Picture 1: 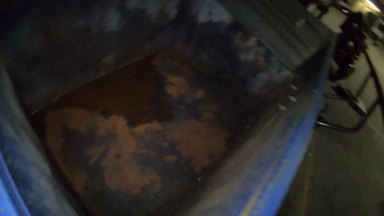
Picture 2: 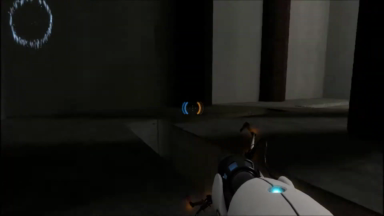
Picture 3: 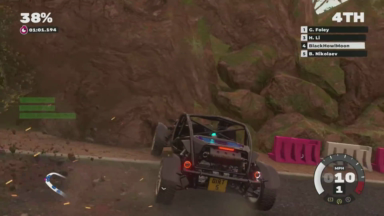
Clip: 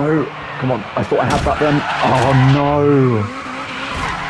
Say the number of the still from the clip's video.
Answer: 3